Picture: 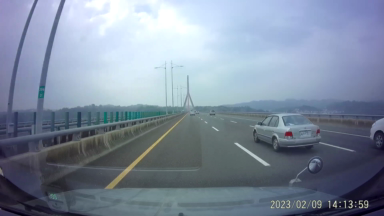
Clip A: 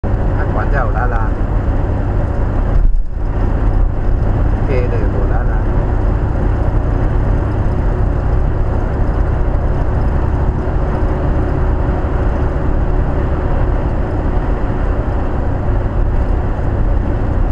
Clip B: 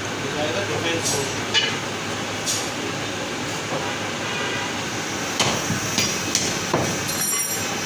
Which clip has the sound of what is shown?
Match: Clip A